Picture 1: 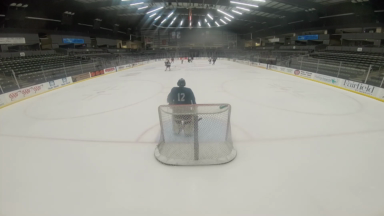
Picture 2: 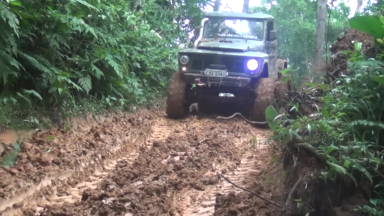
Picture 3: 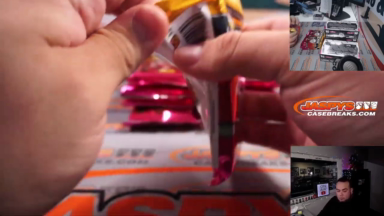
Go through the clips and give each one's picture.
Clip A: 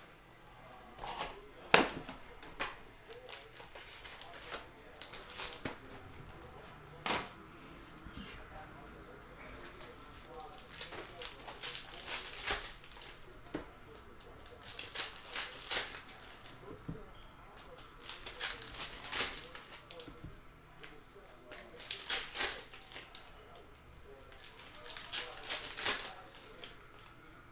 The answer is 3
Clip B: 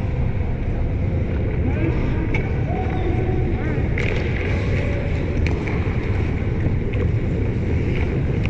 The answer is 1